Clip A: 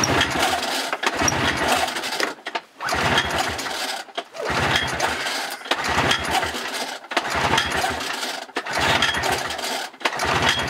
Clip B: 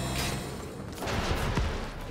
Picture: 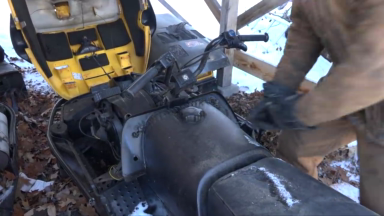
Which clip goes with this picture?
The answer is A